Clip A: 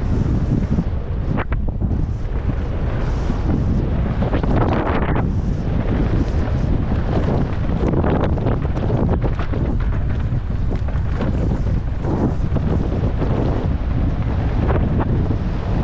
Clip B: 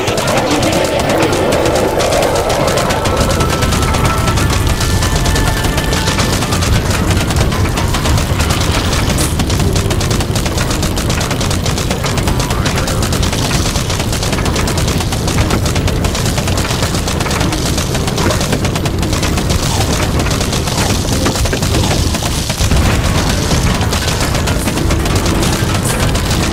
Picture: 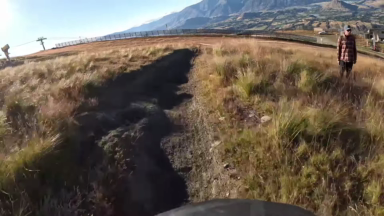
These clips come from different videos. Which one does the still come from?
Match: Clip A